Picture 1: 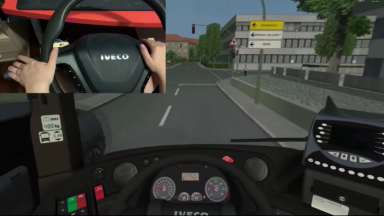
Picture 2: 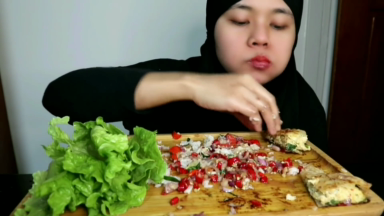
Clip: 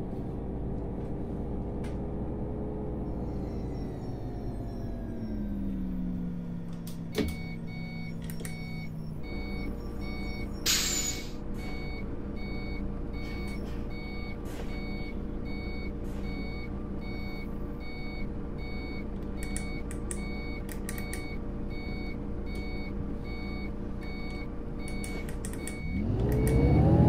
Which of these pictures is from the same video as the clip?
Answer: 1